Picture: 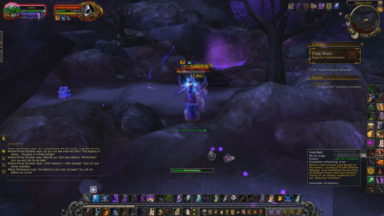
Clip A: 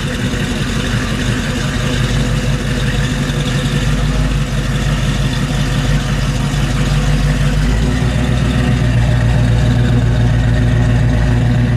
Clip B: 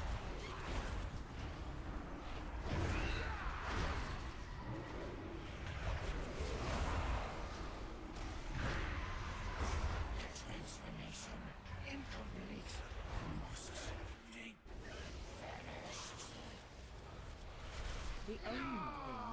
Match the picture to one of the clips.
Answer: B